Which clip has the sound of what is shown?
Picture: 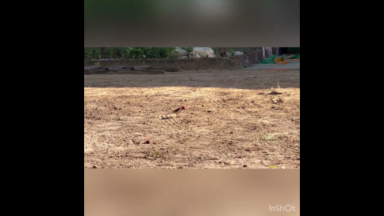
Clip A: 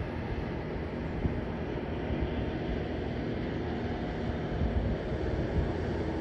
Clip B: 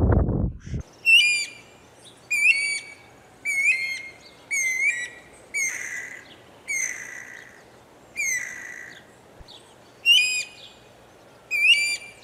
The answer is B